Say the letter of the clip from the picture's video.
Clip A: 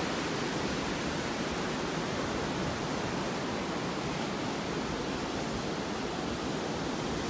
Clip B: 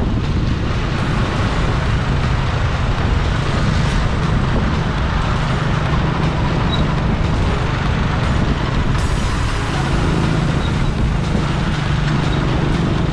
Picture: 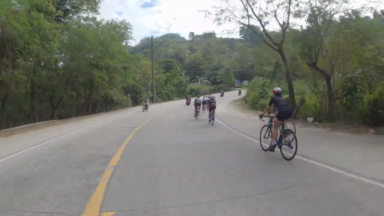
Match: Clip B